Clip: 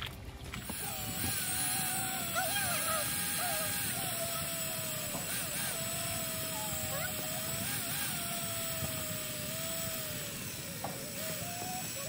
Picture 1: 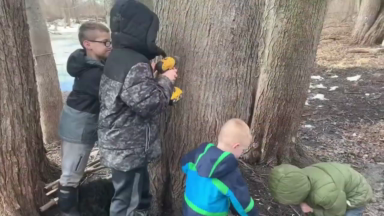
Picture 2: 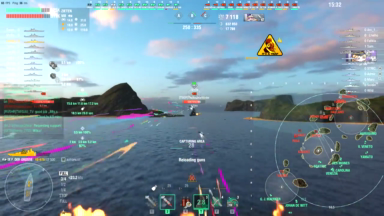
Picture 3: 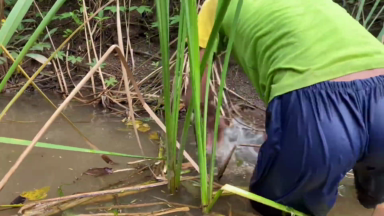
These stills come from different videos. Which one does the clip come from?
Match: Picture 1